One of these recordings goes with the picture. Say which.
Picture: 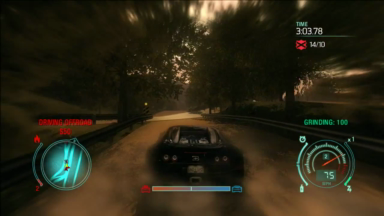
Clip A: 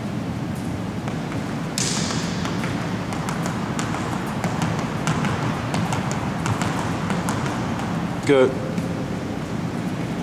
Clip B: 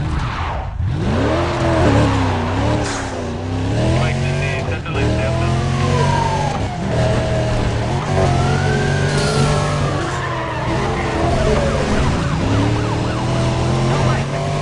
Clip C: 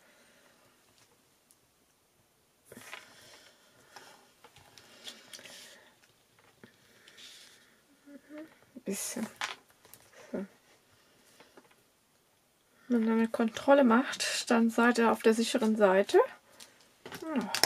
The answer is B